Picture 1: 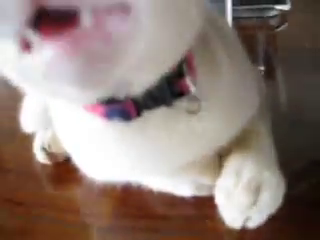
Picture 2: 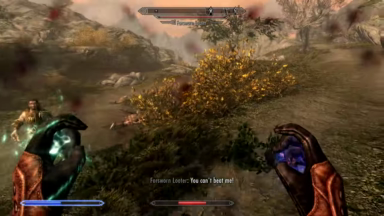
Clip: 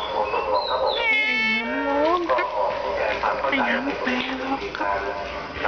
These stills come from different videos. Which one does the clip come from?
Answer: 1